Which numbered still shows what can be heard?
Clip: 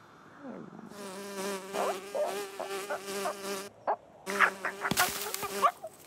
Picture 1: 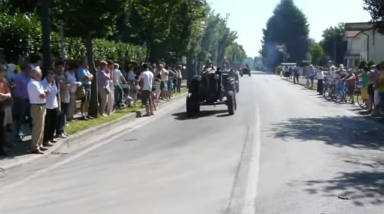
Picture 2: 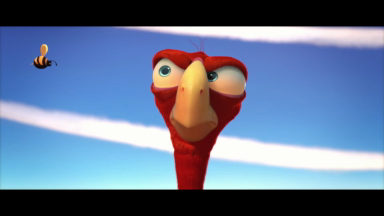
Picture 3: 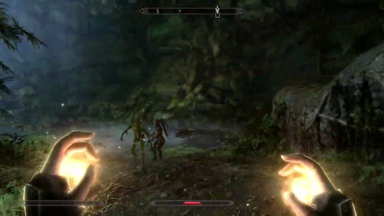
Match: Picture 2